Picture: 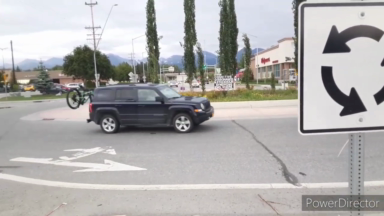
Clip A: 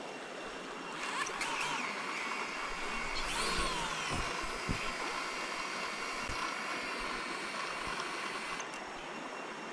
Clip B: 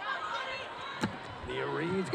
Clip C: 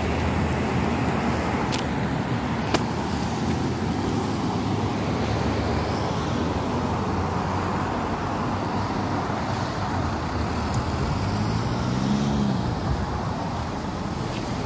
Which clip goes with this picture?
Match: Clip C